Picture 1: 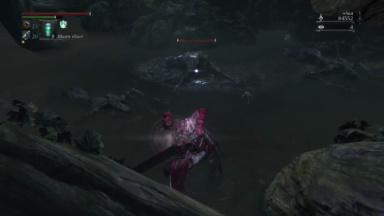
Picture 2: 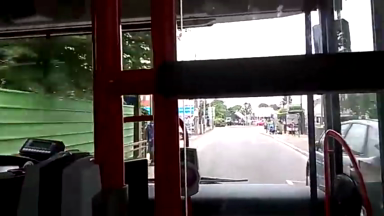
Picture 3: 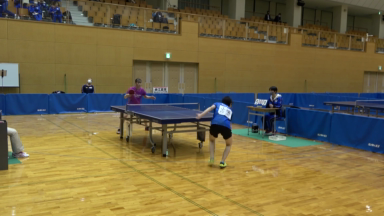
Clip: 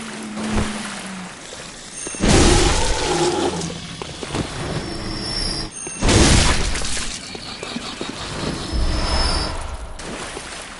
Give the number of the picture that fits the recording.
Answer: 1